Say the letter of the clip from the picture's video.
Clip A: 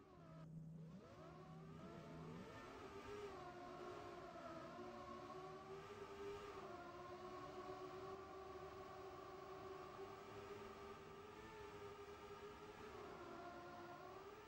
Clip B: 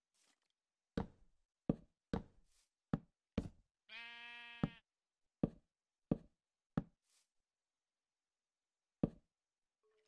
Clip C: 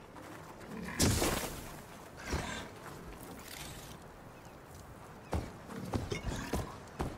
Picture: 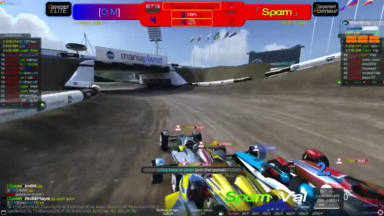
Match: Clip A